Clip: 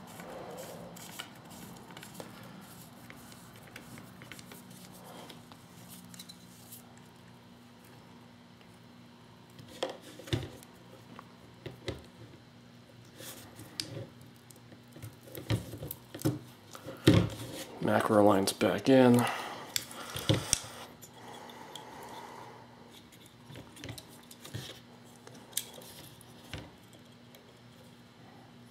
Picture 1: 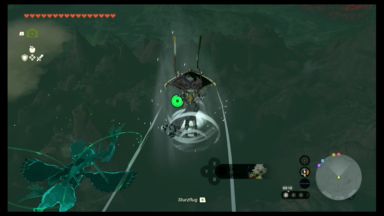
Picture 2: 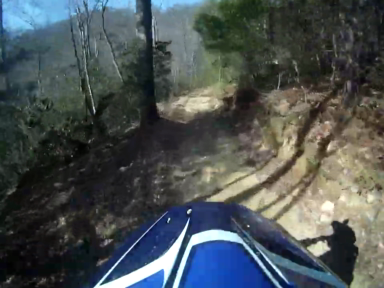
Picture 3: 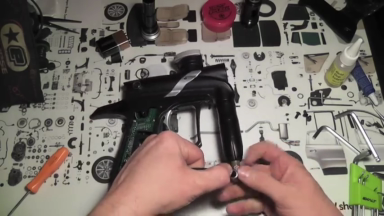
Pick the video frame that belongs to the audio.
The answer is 3